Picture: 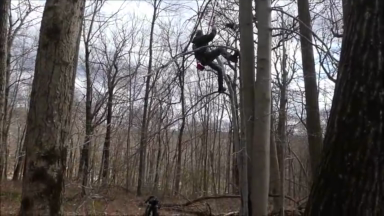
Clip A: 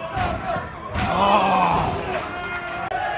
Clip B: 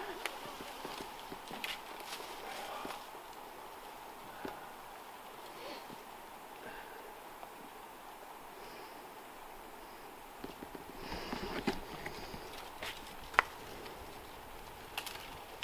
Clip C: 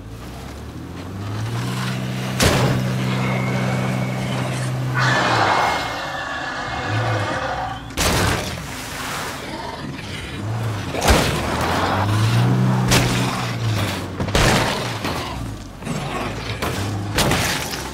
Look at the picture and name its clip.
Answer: B